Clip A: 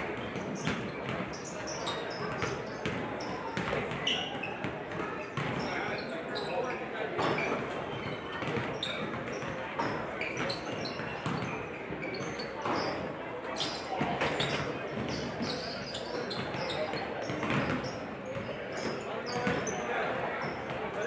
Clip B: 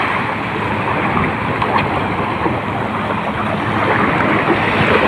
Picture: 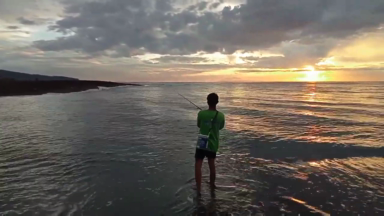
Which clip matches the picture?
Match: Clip B